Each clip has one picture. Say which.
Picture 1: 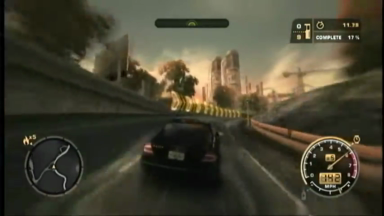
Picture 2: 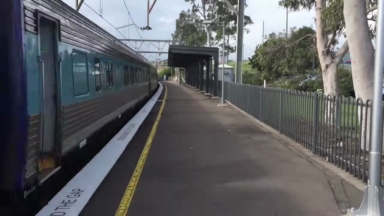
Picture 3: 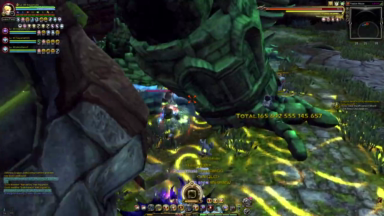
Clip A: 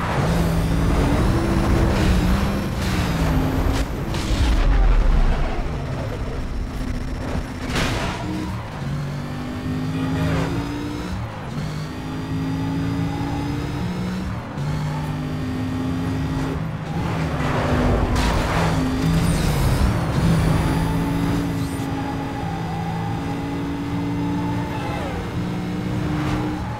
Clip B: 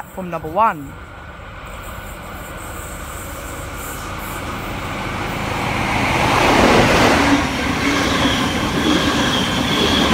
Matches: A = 1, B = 2